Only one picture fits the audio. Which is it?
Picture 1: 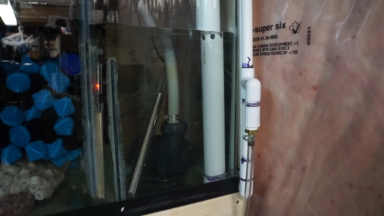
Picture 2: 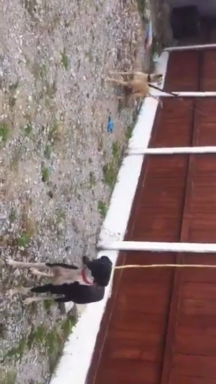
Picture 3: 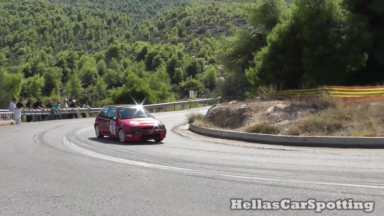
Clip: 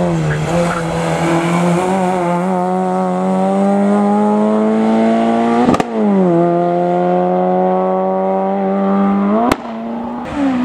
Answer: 3